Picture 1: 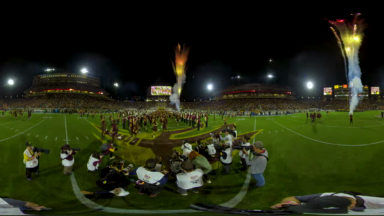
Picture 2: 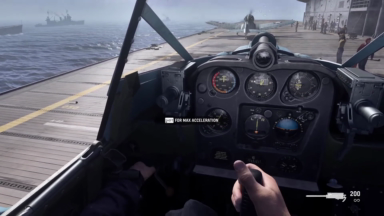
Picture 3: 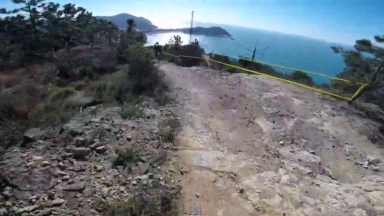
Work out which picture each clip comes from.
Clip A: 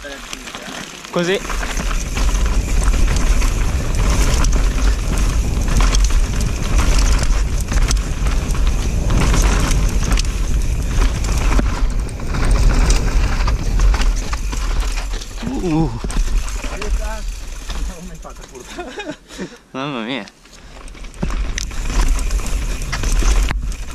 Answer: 3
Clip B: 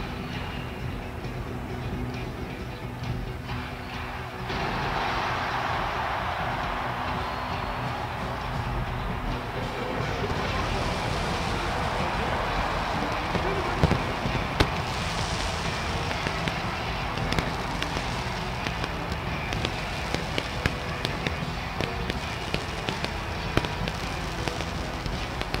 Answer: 1